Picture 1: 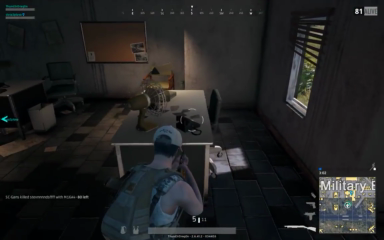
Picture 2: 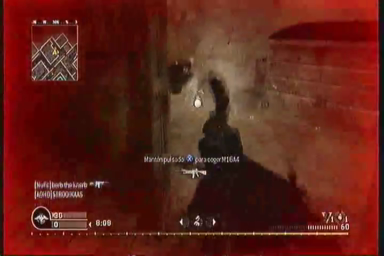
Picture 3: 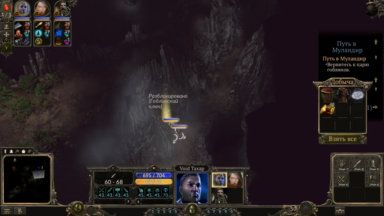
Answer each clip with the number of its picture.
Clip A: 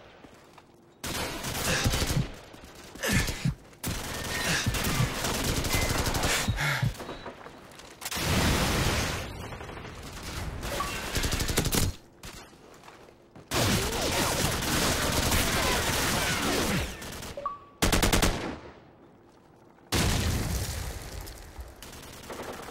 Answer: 2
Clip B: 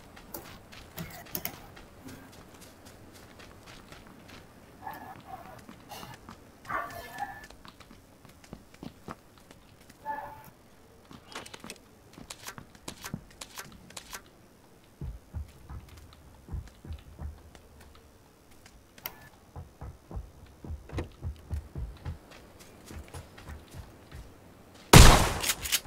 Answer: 1